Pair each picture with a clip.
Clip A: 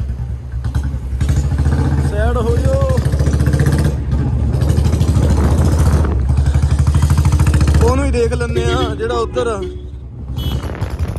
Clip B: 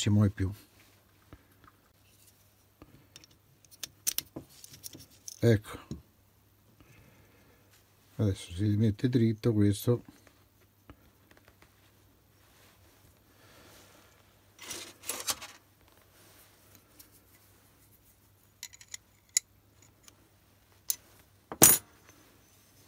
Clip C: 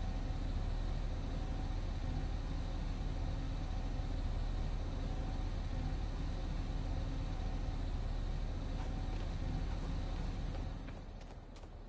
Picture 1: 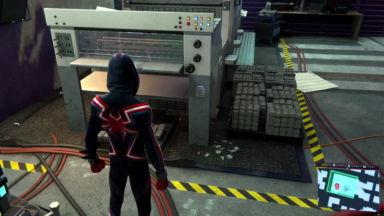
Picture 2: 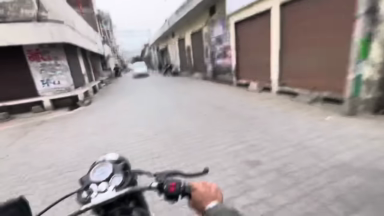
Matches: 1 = C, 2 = A